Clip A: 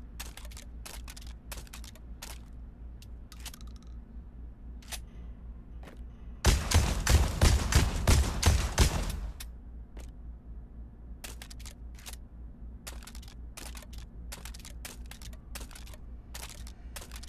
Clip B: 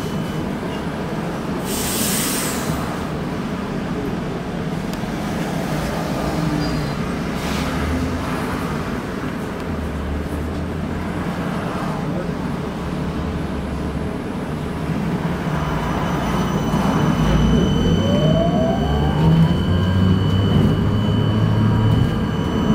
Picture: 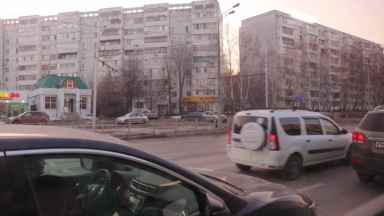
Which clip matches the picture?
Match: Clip B